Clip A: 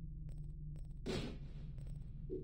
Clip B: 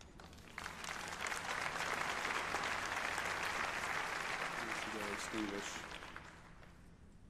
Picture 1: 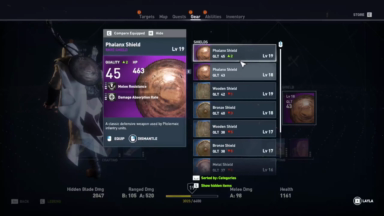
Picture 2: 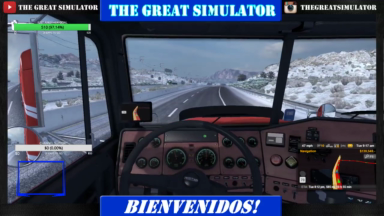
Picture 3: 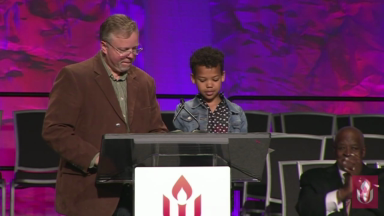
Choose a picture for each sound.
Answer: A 1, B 3